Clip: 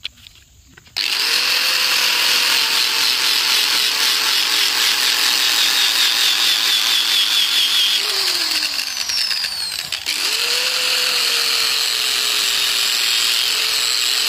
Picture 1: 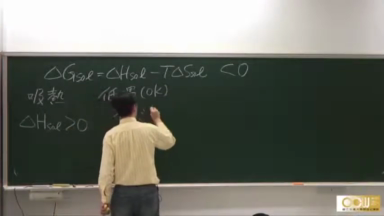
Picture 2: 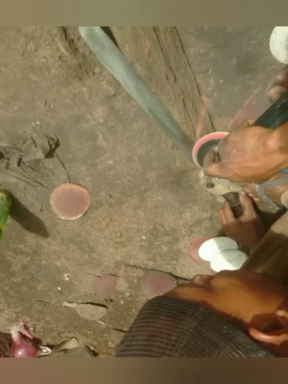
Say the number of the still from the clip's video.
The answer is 2